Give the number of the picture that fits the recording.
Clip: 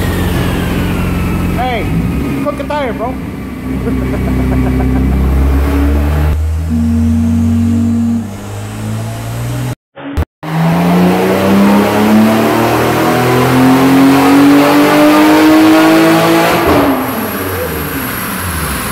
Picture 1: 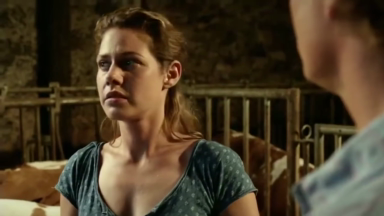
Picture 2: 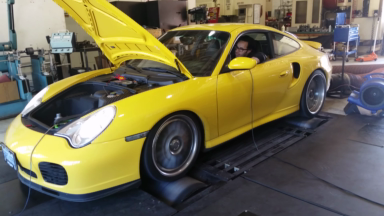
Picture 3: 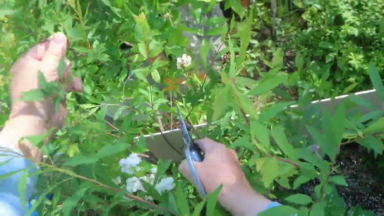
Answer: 2